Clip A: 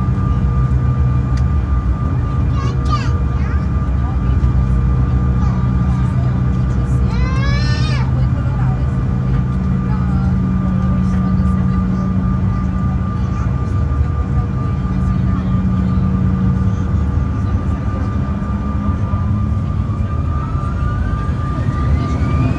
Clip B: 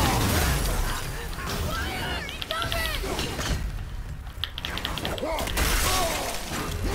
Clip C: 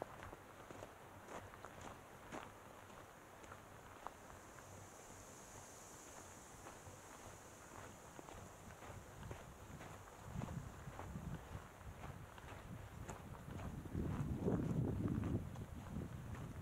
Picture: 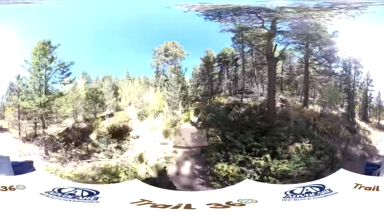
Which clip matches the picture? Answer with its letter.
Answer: C